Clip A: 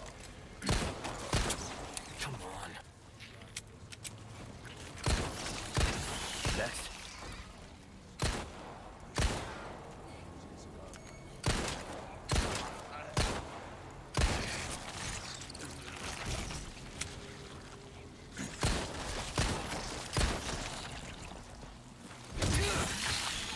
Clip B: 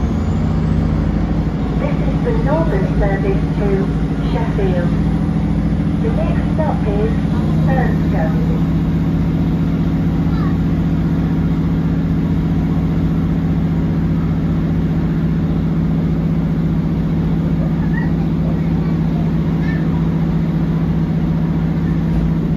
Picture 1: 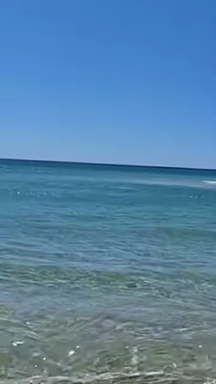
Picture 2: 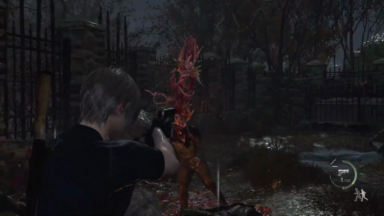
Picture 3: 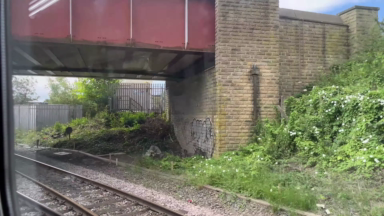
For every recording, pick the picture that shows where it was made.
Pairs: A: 2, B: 3